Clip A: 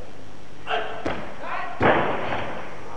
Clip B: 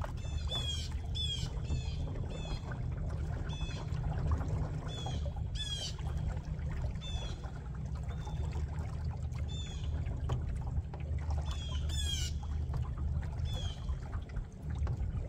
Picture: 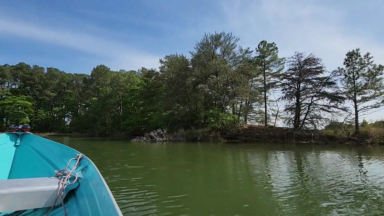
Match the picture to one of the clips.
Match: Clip B